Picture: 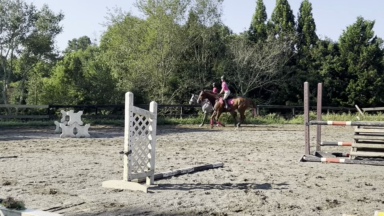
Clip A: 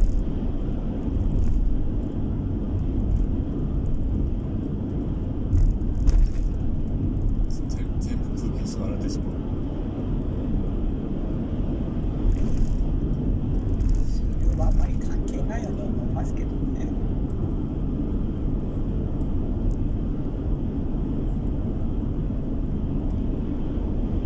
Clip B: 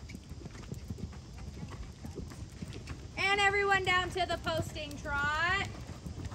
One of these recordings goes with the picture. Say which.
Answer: B